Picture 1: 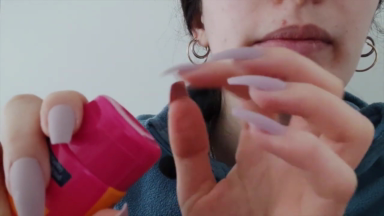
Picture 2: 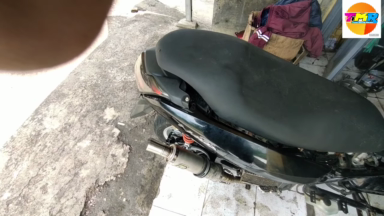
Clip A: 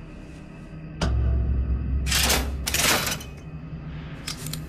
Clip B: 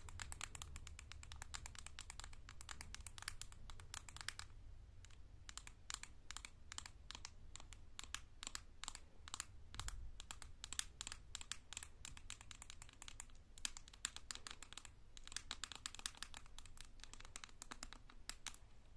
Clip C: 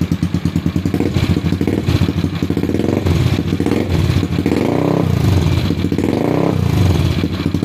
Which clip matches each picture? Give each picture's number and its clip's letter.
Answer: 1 B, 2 C